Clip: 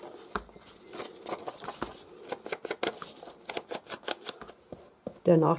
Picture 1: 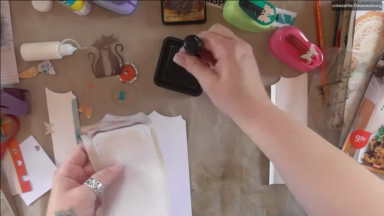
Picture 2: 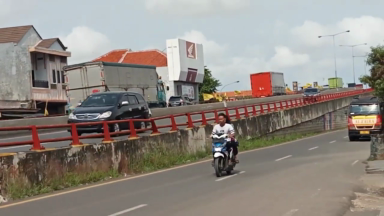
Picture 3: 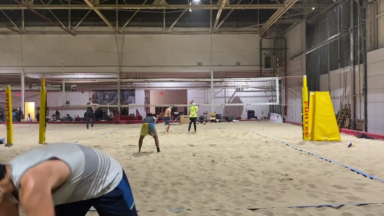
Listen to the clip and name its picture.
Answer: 1